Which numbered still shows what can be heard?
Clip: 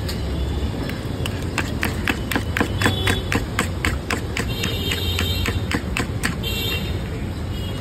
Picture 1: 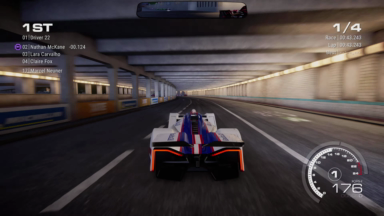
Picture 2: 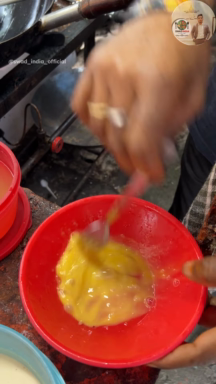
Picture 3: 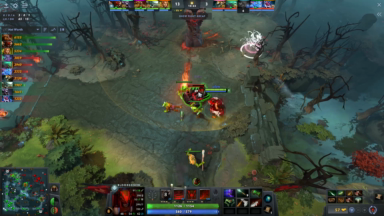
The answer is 2